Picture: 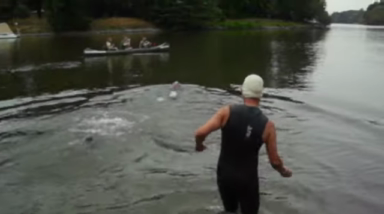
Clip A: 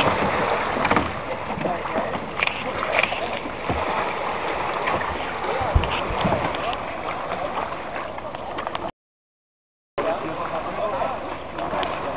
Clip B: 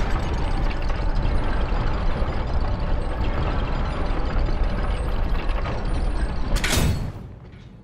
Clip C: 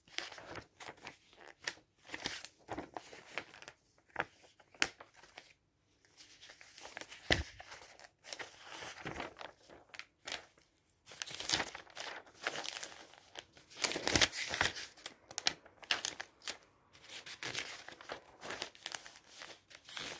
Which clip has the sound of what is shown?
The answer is A